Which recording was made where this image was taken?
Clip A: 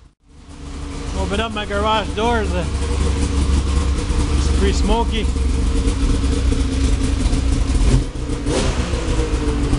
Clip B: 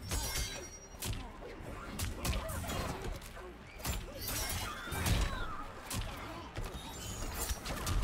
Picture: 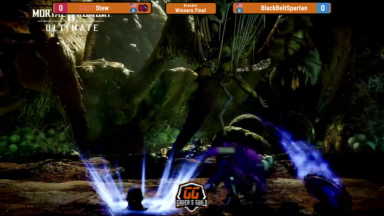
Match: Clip B